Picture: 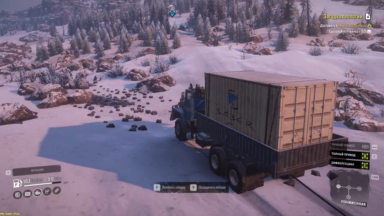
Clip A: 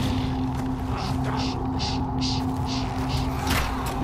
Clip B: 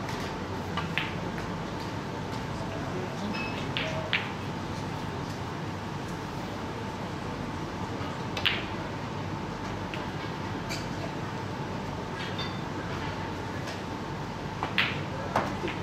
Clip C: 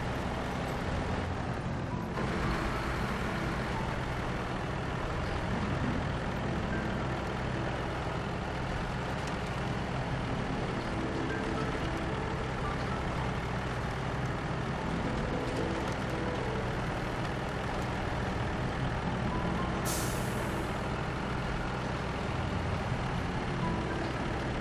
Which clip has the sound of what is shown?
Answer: C